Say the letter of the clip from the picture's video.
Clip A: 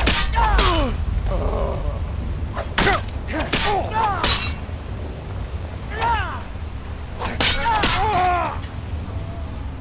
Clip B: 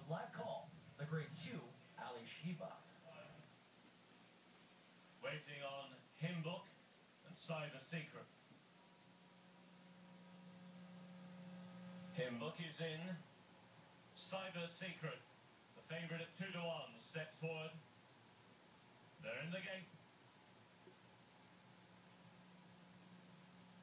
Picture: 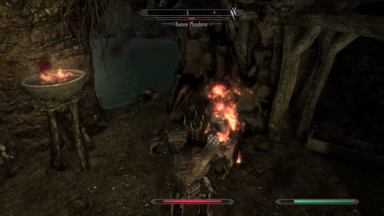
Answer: A